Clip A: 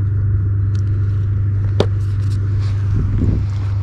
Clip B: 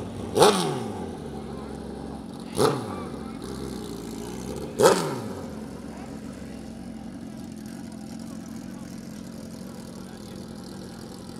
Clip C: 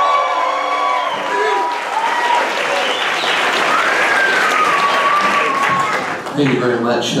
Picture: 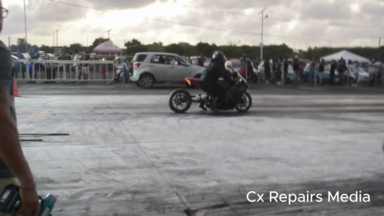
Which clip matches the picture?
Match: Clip B